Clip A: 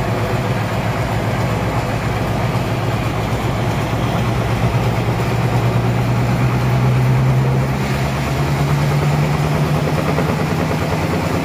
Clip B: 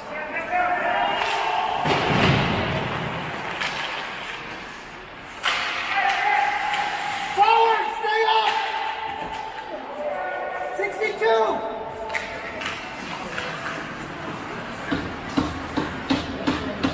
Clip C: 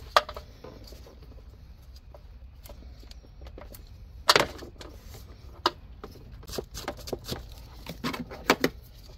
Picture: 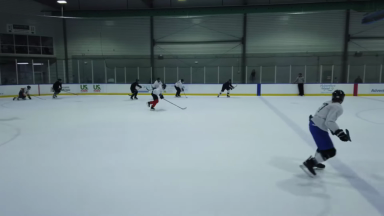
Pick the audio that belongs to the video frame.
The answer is B